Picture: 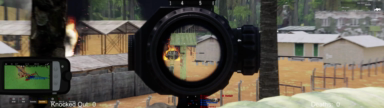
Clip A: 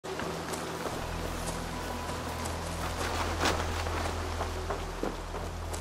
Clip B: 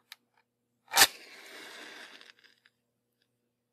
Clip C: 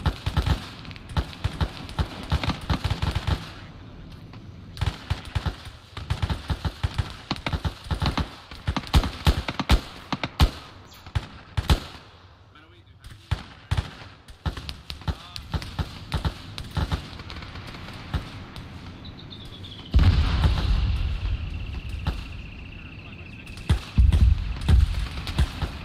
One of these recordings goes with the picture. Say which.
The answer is C